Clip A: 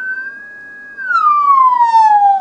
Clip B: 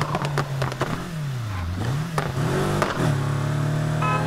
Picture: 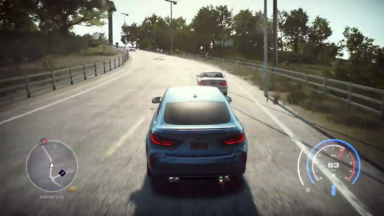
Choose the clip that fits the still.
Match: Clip B